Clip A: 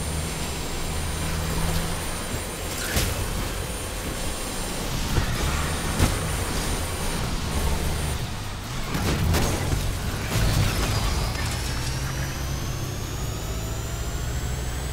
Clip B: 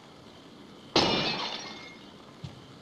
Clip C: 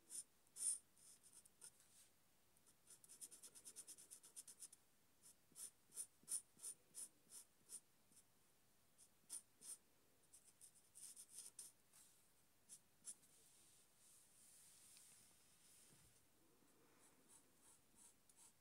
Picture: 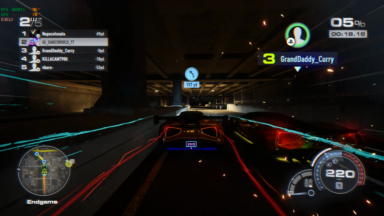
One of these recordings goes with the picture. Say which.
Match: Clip A